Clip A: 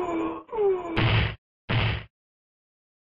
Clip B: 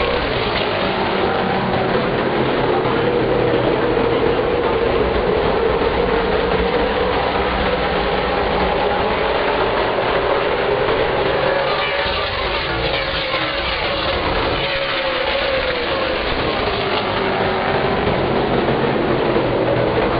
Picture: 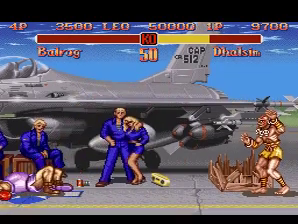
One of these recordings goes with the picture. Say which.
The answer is A